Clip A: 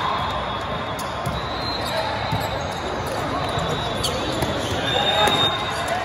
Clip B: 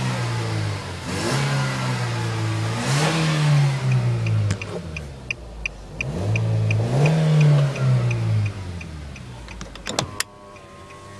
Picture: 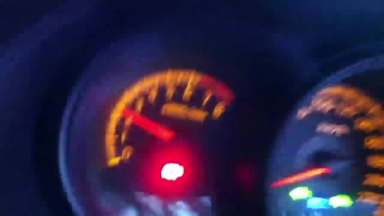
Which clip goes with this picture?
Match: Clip B